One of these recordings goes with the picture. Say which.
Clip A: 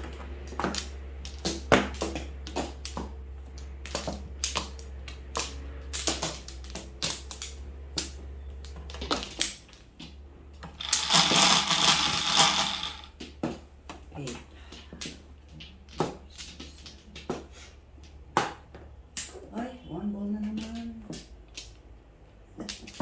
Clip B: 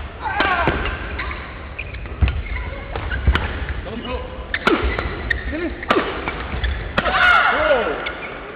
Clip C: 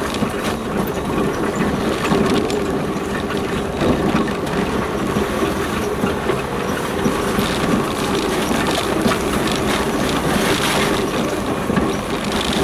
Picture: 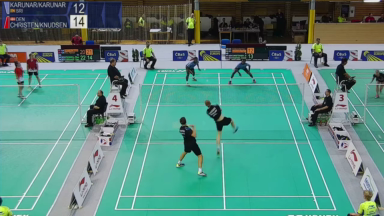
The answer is B